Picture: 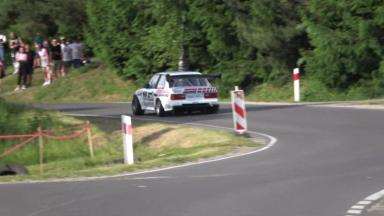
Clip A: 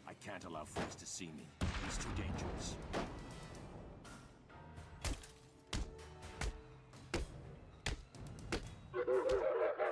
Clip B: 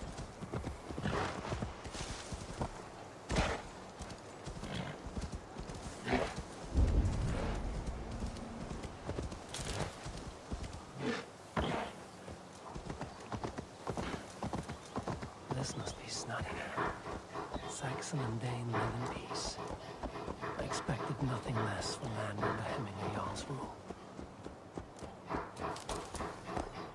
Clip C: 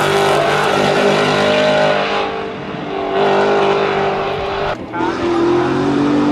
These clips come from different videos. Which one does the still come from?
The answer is C